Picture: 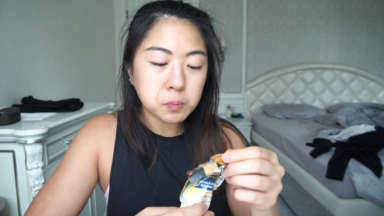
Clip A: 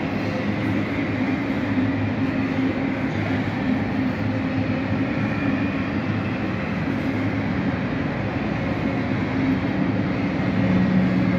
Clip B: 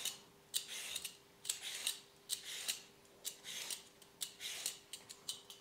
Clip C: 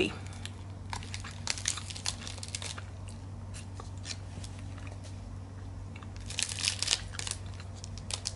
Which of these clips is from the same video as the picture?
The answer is C